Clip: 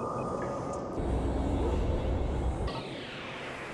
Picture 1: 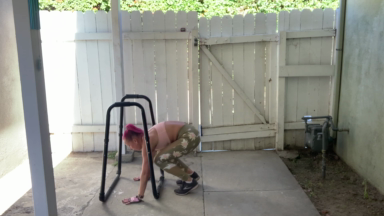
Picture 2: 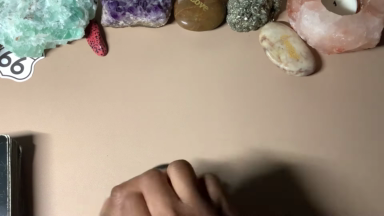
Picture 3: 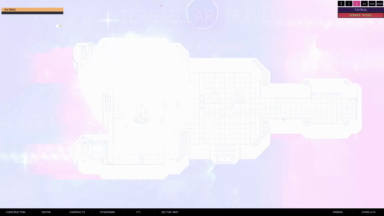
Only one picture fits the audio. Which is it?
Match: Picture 3